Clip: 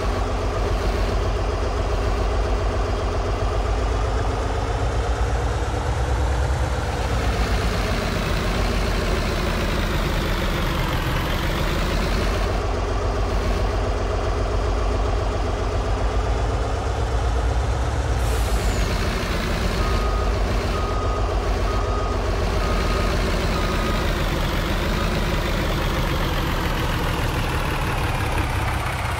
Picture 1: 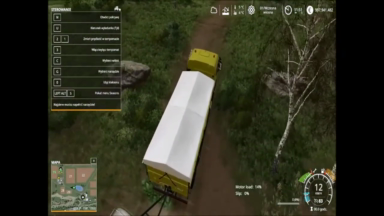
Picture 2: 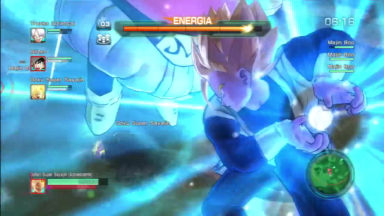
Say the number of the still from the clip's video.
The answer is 1